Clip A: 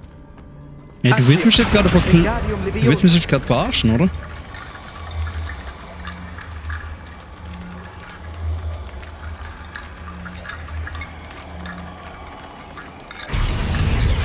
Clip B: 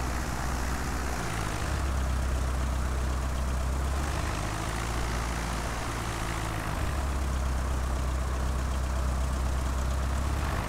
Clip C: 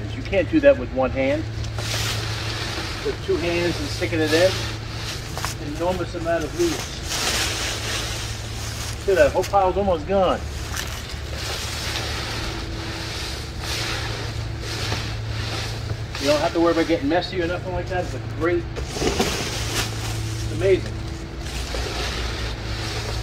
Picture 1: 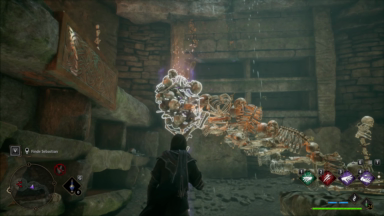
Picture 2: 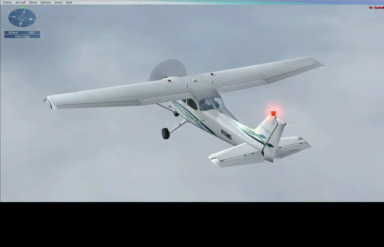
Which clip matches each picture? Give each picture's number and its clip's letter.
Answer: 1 A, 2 B